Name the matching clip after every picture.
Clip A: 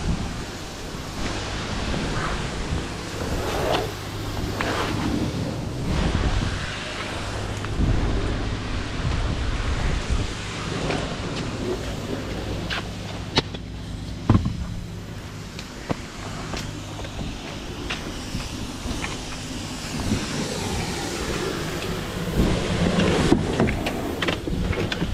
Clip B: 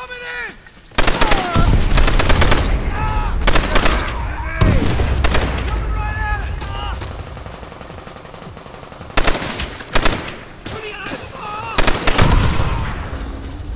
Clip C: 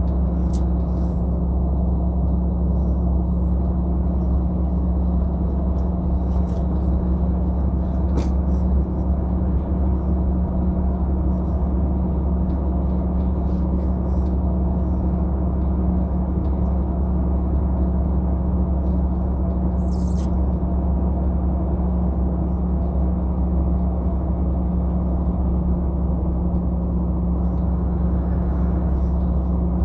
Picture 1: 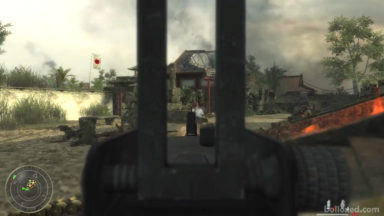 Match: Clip B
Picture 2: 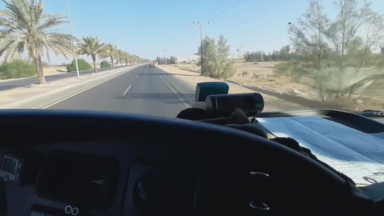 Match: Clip C